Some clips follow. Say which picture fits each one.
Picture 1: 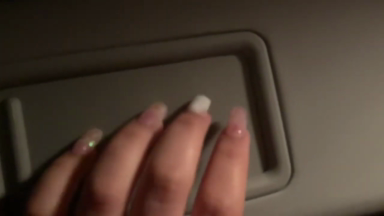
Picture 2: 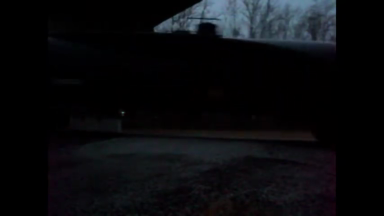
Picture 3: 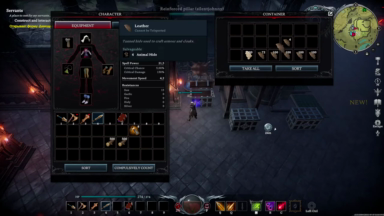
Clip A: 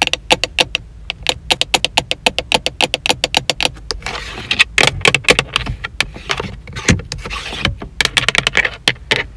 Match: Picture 1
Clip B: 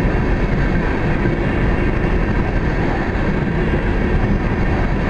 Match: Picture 2